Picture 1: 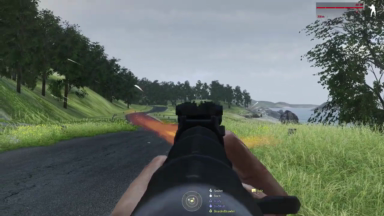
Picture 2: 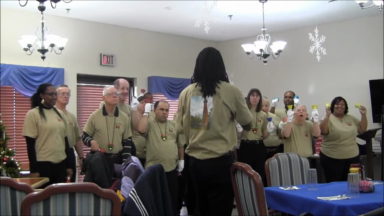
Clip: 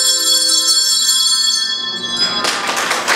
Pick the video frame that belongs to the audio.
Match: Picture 2